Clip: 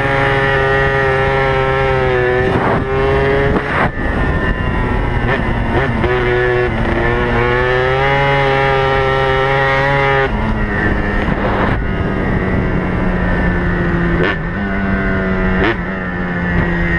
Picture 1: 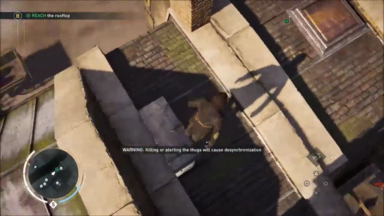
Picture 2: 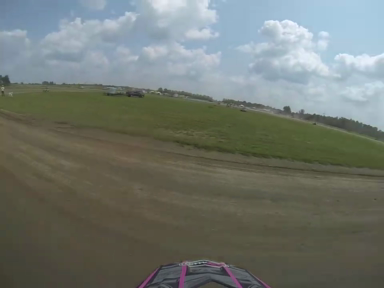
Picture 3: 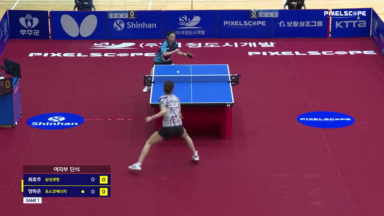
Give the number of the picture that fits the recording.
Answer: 2